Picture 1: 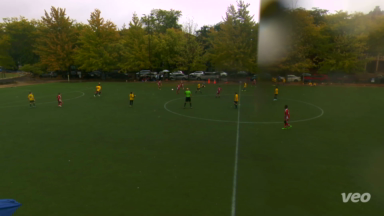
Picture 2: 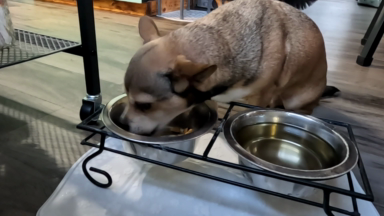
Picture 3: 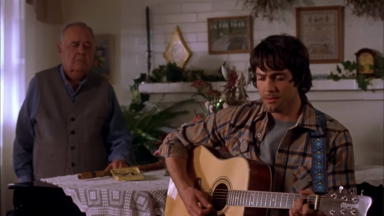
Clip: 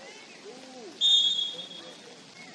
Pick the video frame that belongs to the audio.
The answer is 1